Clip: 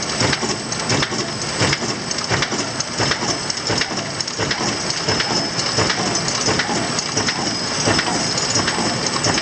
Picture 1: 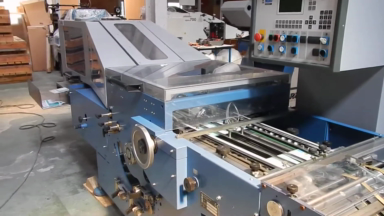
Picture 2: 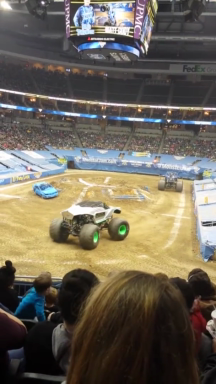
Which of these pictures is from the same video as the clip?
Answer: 1